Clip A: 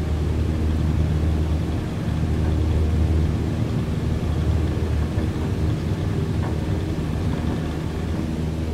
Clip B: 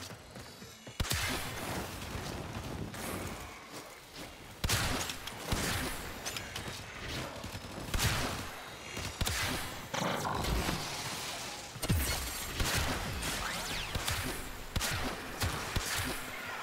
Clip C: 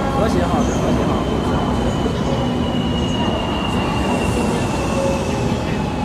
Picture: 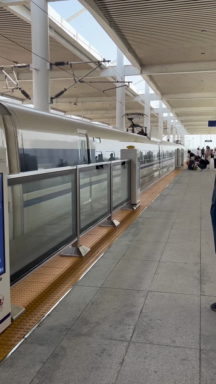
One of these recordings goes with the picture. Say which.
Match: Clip C